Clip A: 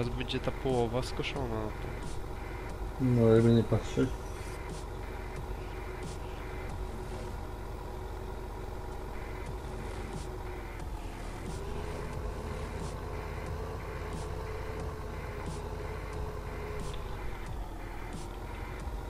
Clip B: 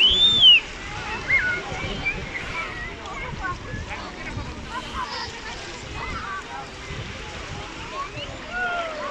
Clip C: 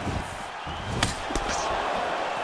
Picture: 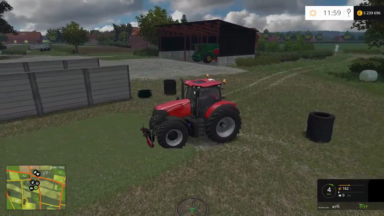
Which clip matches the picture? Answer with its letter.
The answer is A